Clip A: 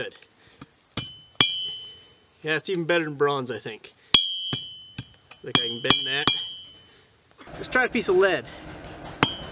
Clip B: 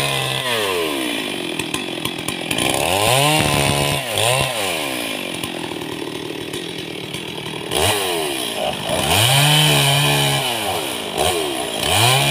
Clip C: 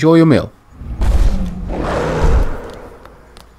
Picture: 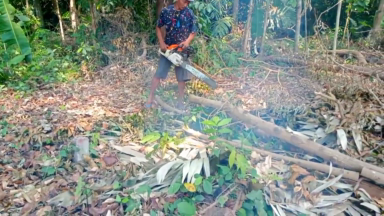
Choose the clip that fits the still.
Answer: B